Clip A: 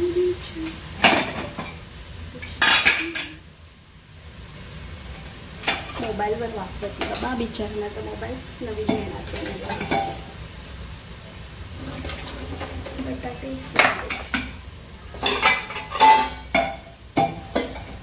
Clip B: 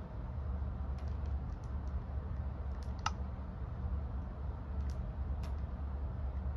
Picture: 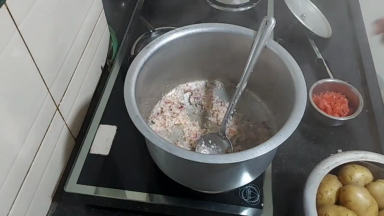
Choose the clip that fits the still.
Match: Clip A